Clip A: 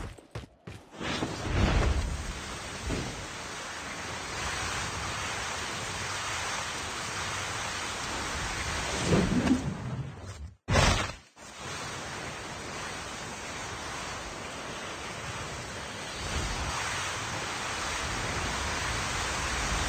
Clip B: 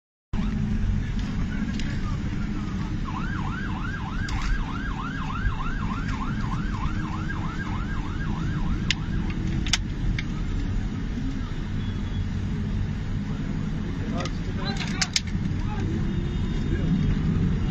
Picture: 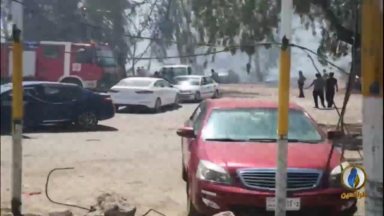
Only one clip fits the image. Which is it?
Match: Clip B